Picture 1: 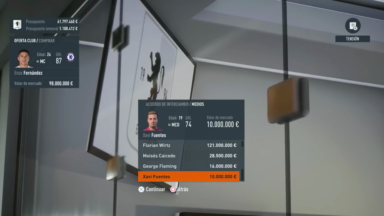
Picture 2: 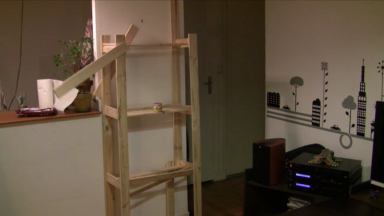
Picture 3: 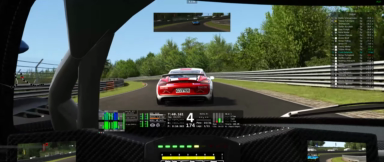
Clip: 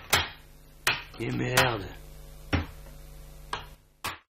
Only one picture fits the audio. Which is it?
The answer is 2